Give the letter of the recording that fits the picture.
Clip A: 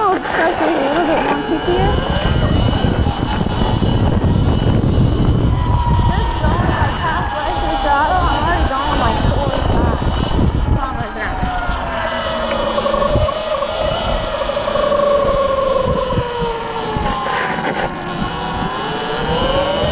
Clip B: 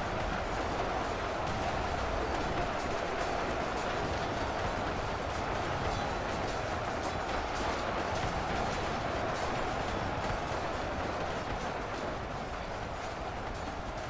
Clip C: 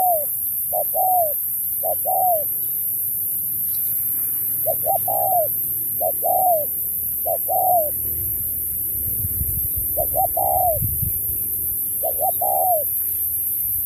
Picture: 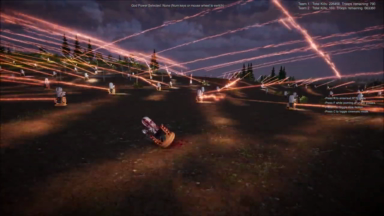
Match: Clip B